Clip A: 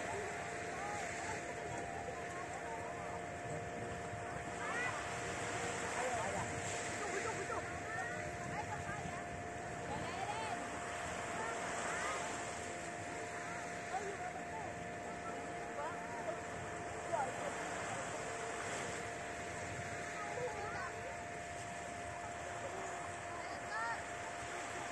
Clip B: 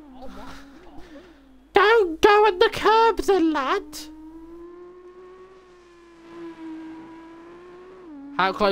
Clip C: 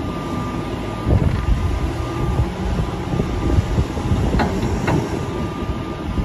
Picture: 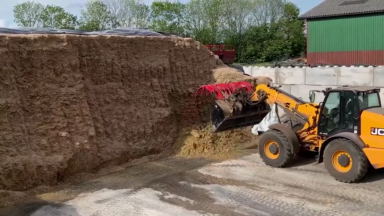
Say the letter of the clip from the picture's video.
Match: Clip C